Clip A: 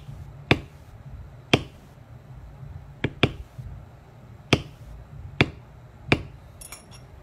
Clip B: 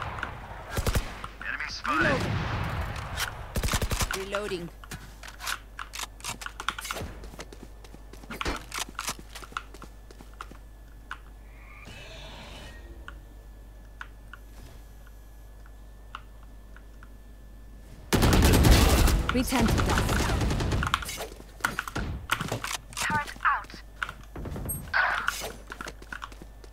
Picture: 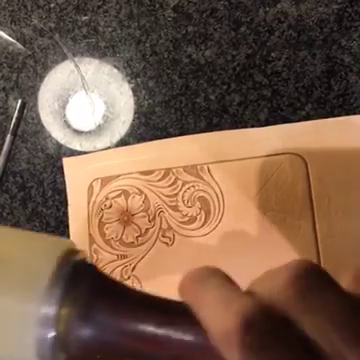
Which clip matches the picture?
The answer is A